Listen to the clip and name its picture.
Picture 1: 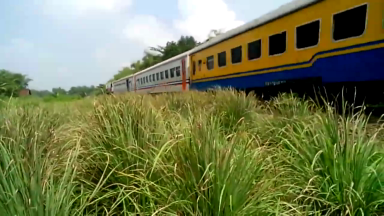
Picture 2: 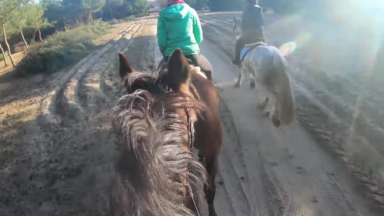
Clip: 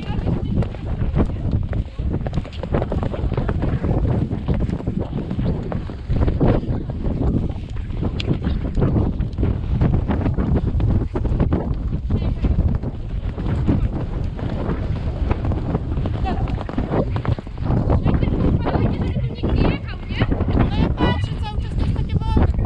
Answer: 2